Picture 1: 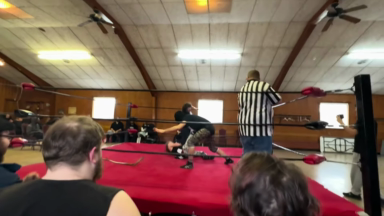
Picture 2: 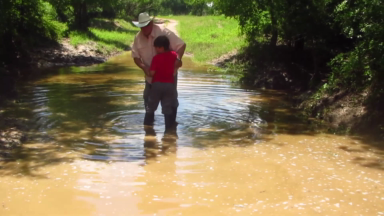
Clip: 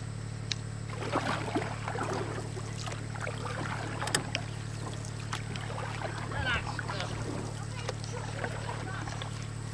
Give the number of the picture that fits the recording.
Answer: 2